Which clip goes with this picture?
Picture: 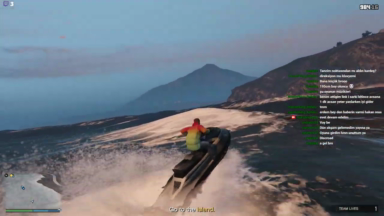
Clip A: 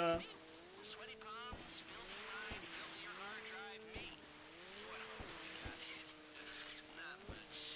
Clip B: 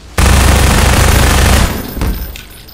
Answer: A